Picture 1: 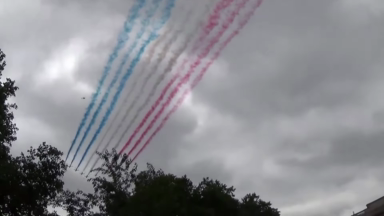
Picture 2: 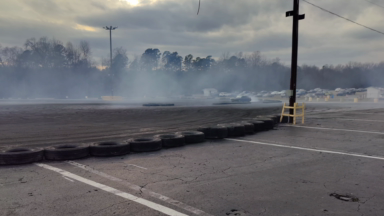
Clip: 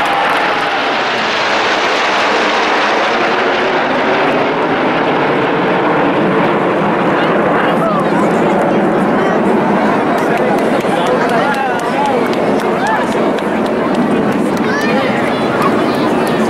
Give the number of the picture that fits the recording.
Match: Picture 1